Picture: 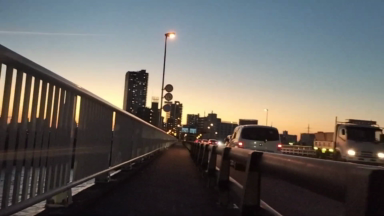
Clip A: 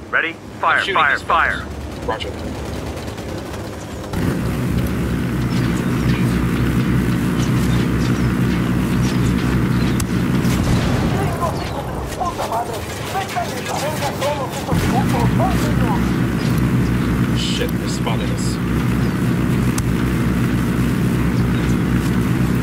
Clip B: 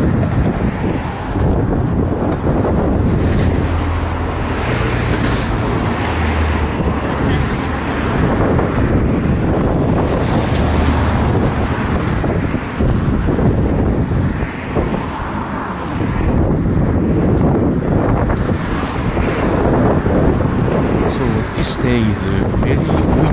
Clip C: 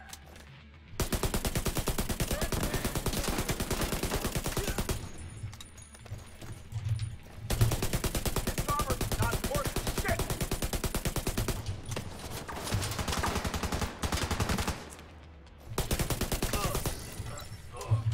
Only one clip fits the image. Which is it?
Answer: B